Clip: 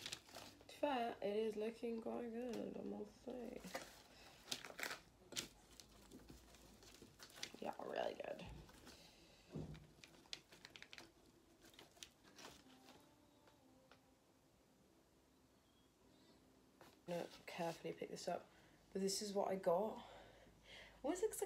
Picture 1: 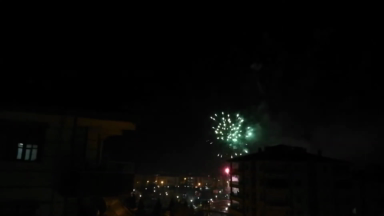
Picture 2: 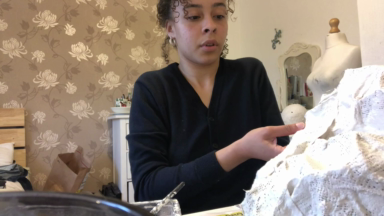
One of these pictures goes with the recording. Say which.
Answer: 2